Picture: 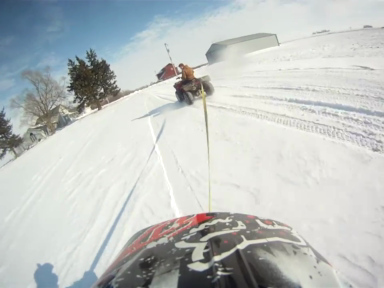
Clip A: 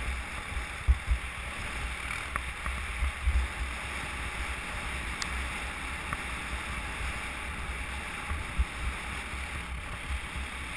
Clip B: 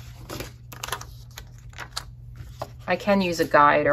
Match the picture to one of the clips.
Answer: A